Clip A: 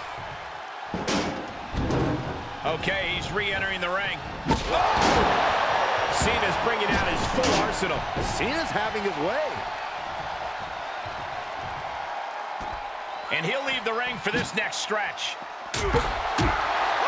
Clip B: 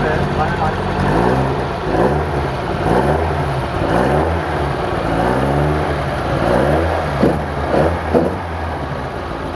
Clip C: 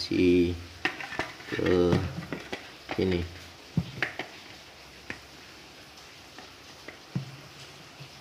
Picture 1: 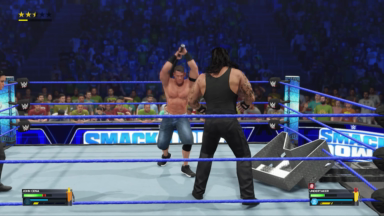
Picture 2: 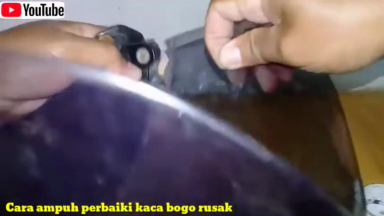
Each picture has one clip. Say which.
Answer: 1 A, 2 C